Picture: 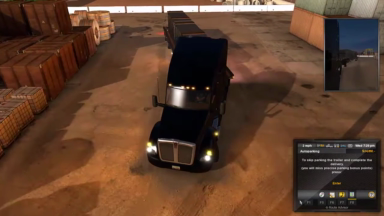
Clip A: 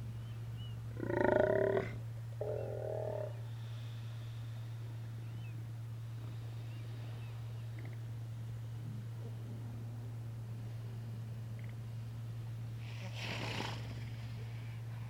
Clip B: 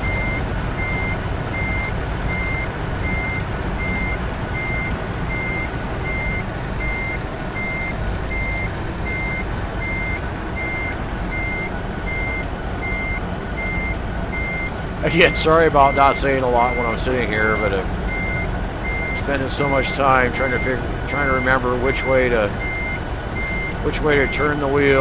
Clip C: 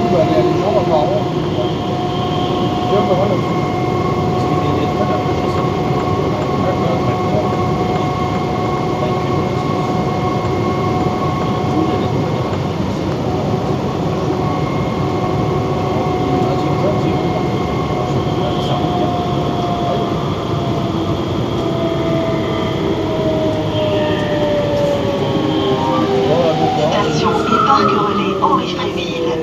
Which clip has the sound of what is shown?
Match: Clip B